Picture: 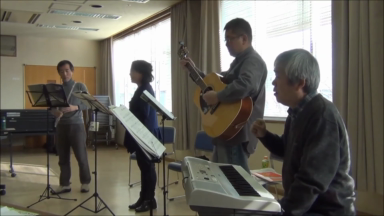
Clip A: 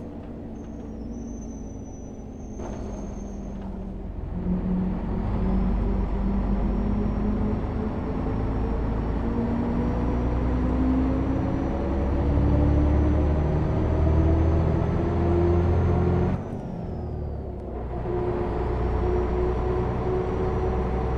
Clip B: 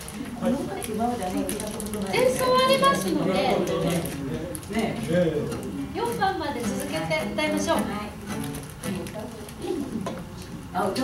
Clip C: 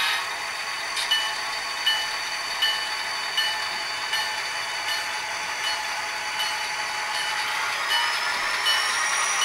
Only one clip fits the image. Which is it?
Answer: B